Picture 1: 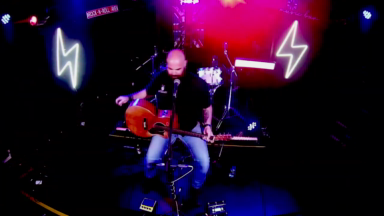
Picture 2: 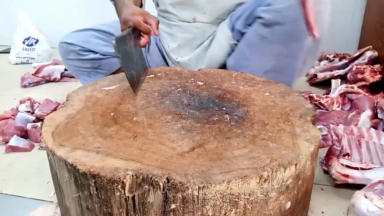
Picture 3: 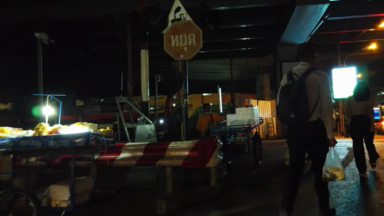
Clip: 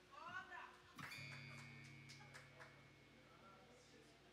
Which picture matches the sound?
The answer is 1